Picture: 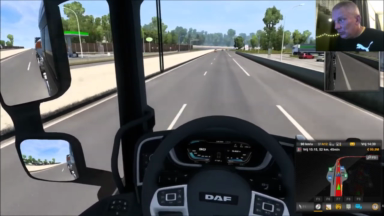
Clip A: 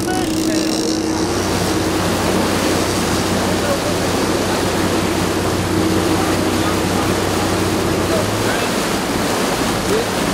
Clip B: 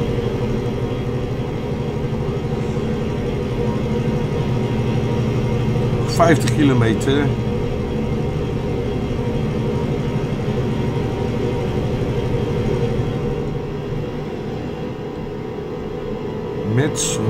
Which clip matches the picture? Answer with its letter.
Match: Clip B